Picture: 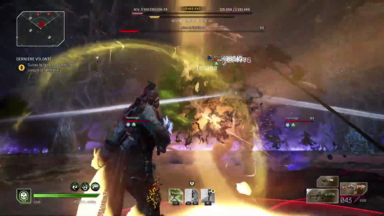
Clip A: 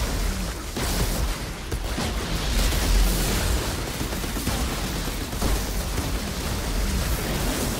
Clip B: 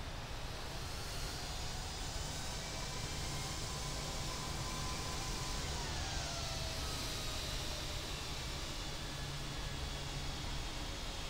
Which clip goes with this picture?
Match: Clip A